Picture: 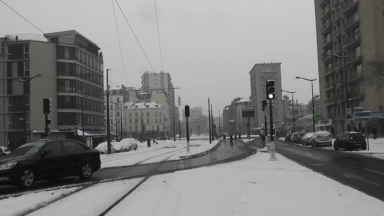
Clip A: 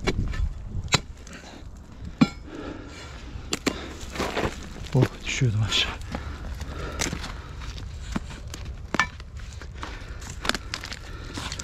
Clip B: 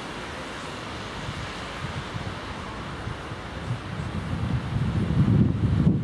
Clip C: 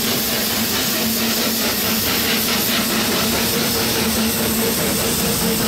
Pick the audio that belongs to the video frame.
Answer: B